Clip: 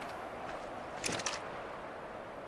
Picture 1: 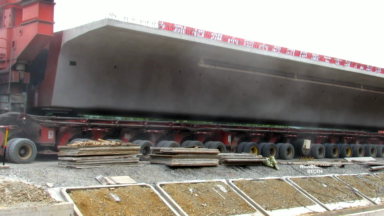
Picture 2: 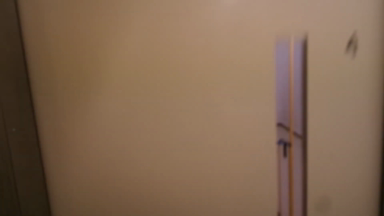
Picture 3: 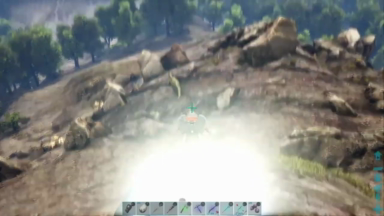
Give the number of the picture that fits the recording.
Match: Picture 3